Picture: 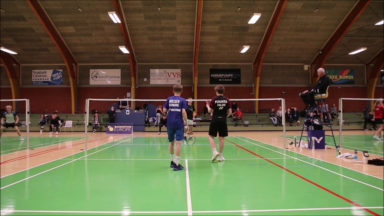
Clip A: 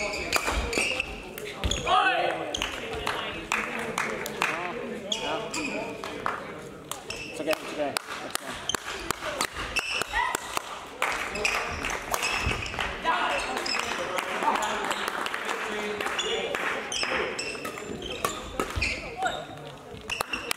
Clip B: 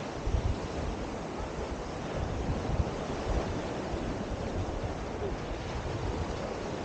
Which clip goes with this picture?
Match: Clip A